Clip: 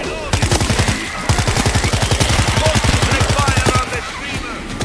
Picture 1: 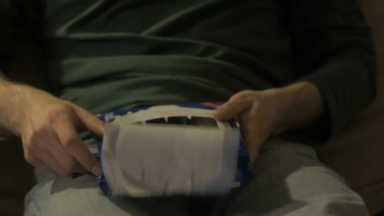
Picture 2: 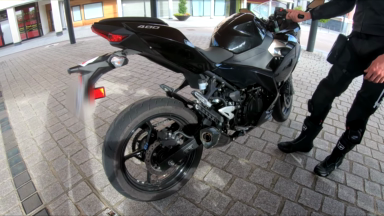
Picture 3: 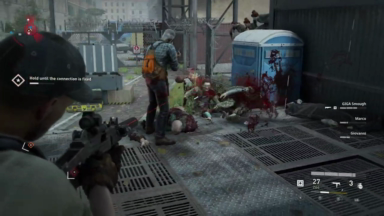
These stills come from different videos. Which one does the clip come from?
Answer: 3